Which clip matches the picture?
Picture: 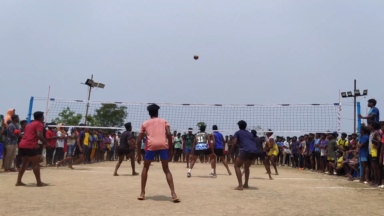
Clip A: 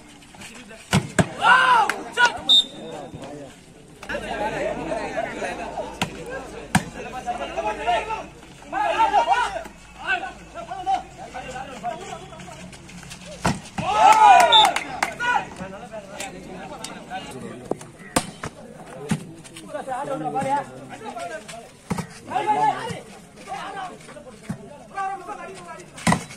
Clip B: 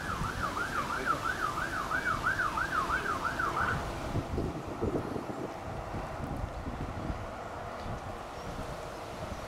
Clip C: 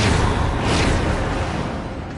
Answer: A